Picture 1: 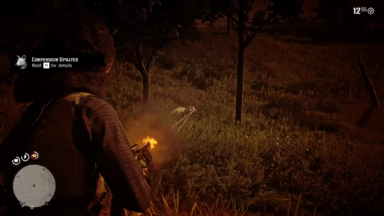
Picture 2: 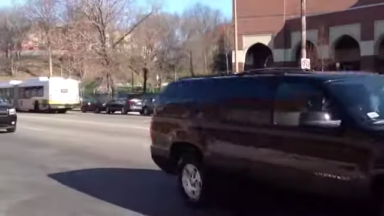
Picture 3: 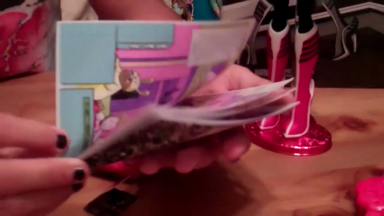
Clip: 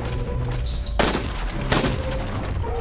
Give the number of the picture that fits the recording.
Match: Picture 1